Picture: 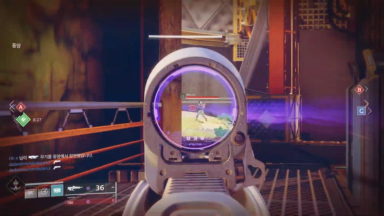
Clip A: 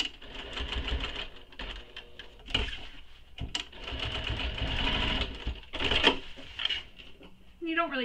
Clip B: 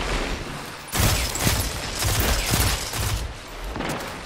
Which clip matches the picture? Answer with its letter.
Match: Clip B